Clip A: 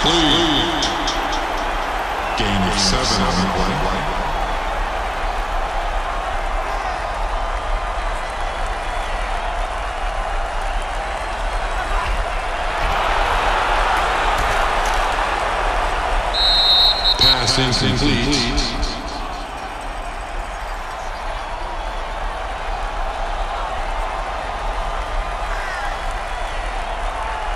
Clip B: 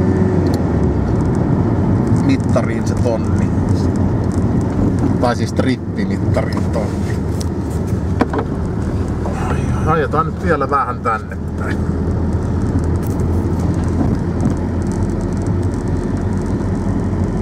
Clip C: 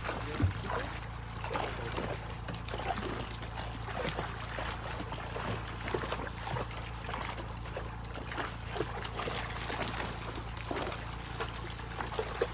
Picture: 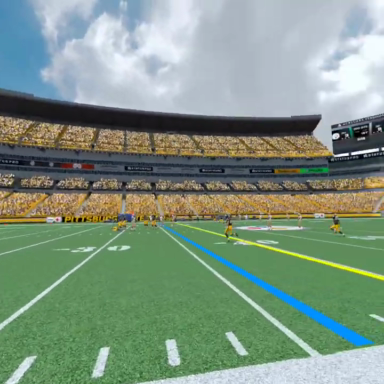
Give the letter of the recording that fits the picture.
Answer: A